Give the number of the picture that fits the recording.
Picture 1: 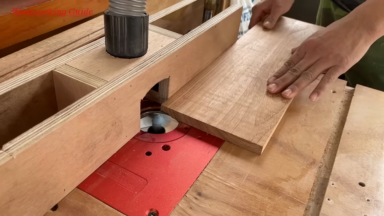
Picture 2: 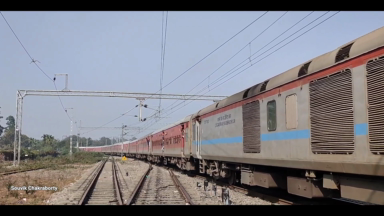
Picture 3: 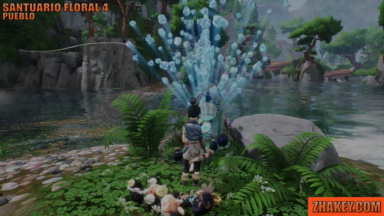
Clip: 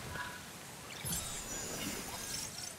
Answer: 3